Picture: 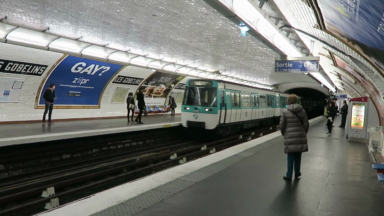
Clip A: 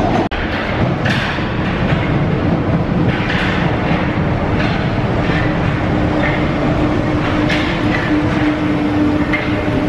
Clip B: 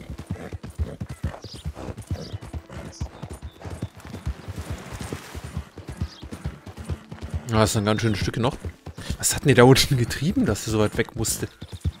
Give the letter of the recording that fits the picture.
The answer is A